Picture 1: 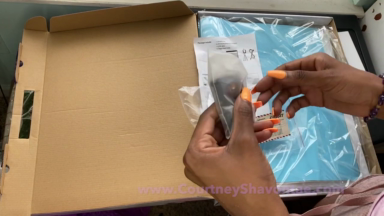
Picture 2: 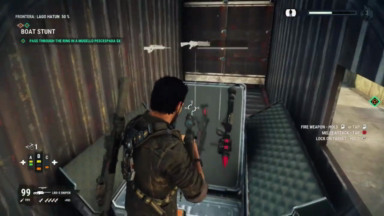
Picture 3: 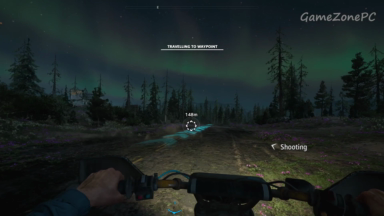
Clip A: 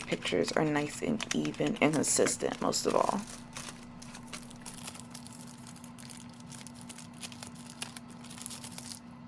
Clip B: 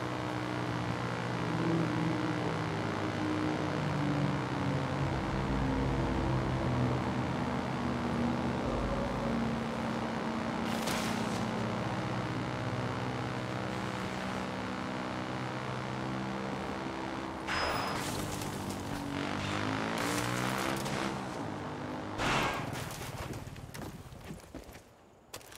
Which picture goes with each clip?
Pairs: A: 1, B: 3